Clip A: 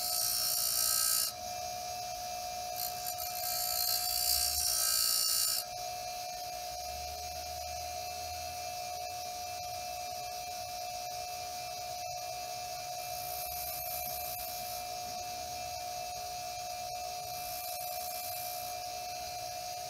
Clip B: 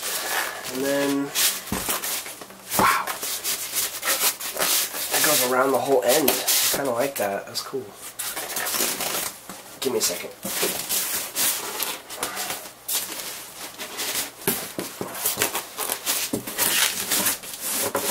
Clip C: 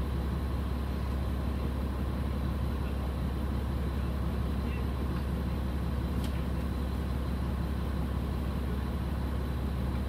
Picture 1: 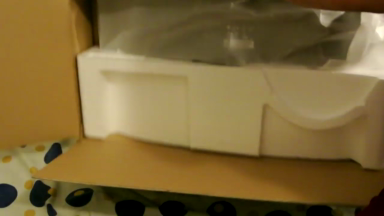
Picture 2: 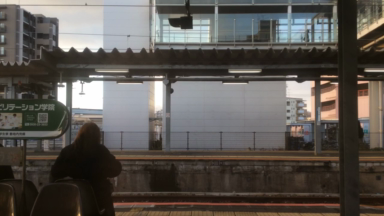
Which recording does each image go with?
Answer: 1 B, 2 C